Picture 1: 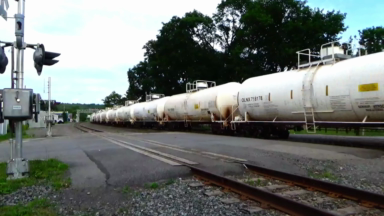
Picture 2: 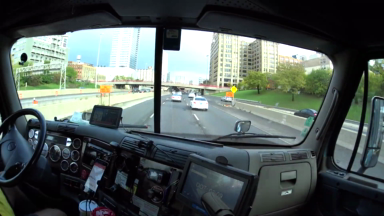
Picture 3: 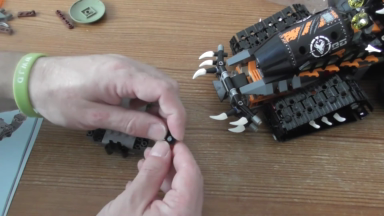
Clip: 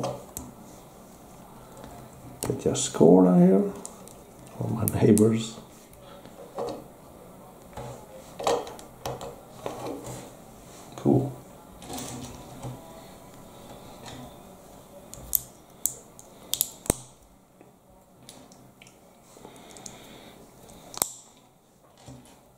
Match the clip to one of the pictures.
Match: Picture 3